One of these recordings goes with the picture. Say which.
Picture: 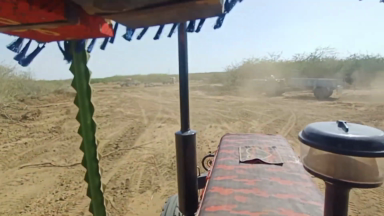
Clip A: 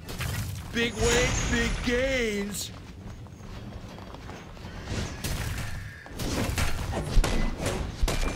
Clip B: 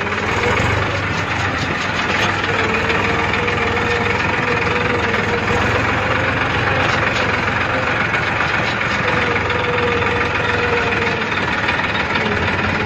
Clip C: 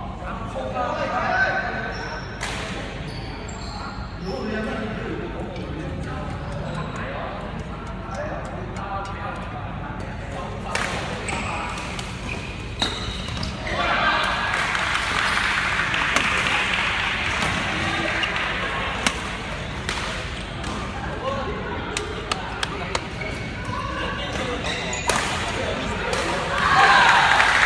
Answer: B